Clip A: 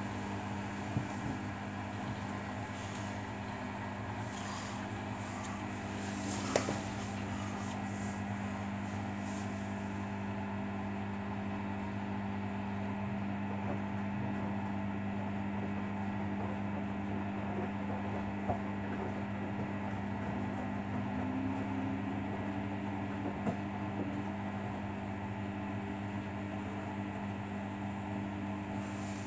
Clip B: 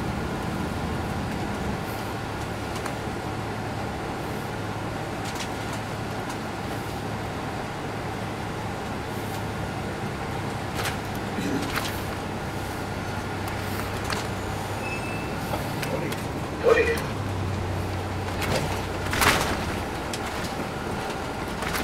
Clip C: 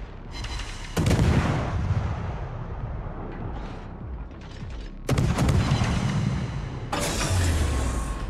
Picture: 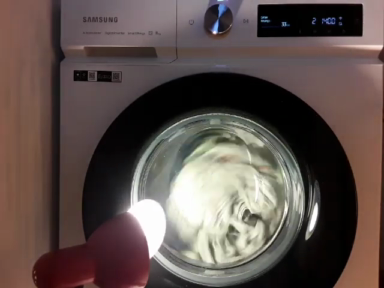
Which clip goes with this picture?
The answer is A